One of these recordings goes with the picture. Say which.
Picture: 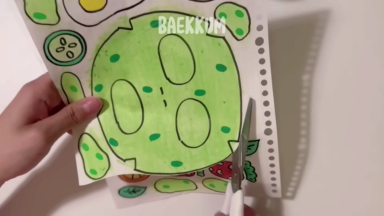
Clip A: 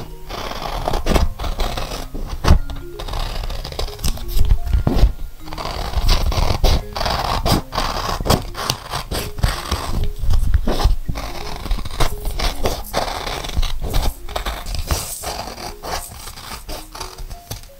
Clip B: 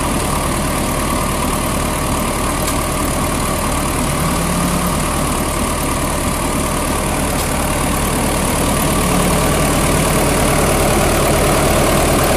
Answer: A